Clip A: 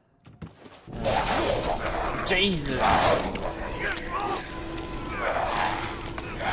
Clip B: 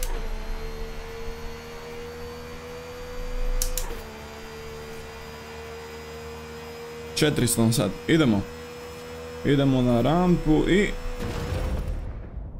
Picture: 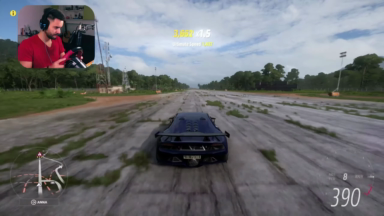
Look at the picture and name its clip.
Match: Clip B